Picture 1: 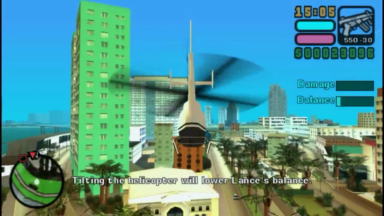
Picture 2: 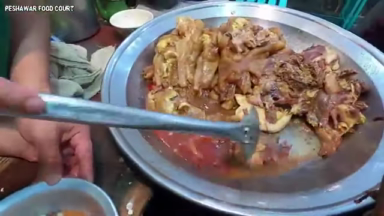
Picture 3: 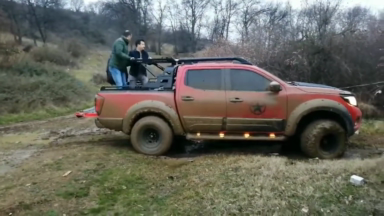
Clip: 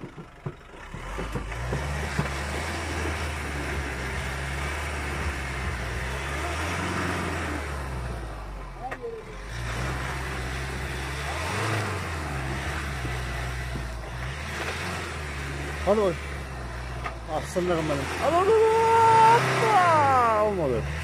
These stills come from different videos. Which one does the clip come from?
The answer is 3